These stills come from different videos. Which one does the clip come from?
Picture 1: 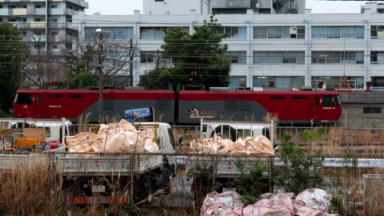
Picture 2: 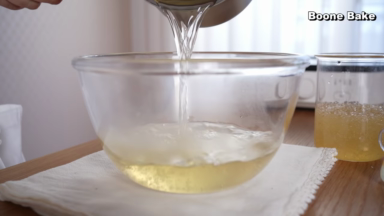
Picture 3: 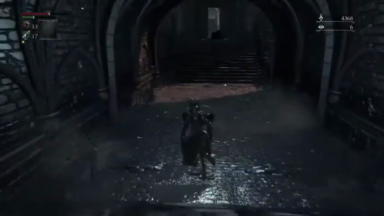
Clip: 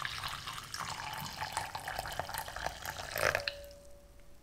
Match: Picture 2